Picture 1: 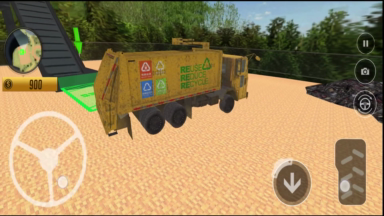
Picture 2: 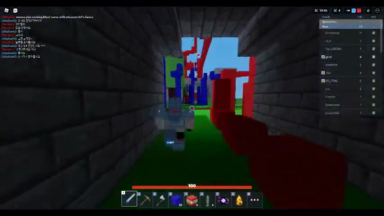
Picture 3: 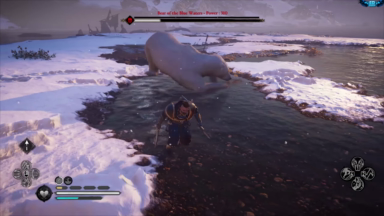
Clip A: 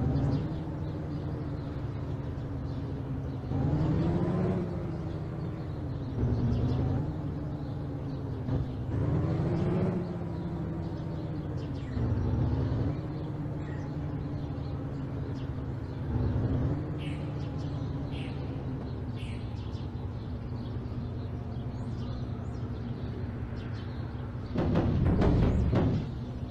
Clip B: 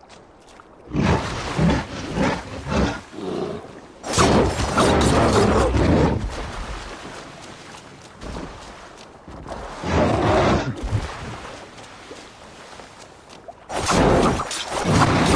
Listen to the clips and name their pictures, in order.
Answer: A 1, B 3